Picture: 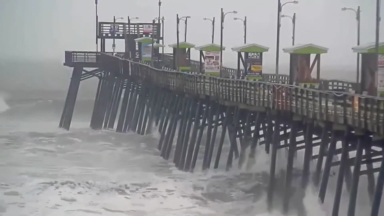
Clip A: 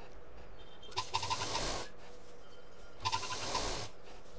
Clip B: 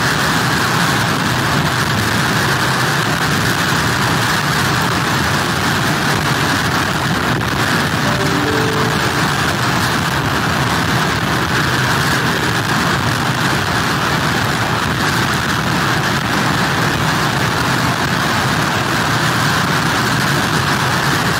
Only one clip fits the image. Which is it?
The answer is B